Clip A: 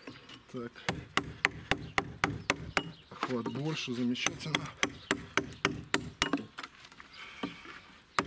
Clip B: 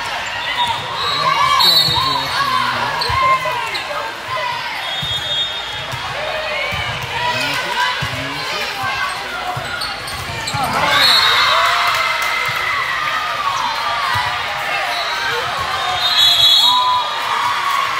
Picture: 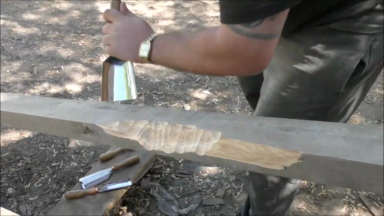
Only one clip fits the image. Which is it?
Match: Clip A